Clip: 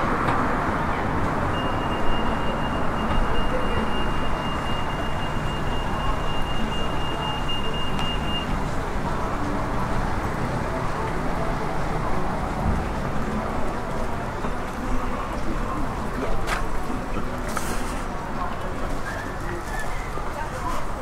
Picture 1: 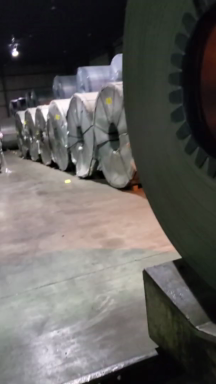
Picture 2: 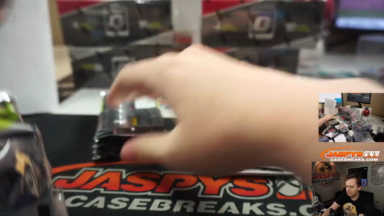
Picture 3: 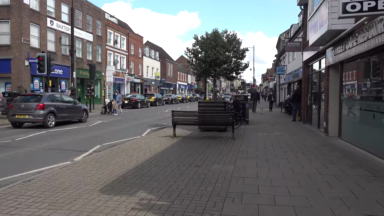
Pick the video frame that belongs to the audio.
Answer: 3